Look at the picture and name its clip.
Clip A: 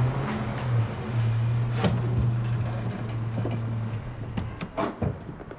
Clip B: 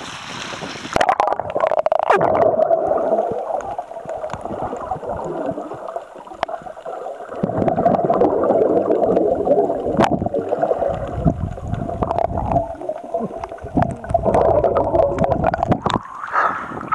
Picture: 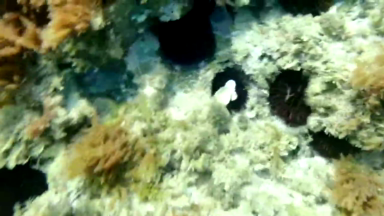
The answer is B